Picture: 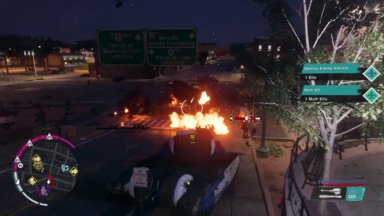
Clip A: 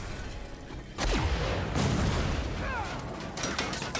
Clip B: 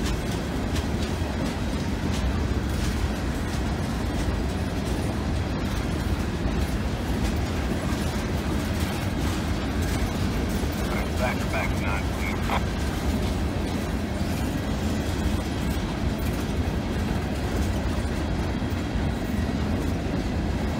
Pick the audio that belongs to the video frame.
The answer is A